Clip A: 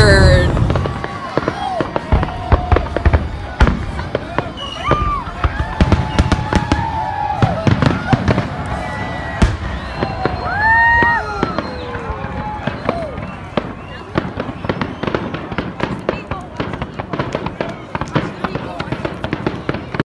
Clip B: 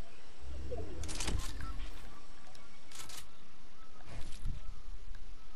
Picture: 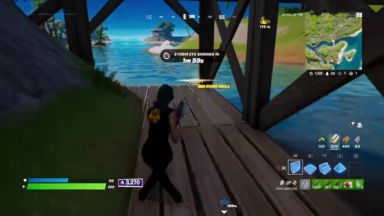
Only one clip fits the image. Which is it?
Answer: B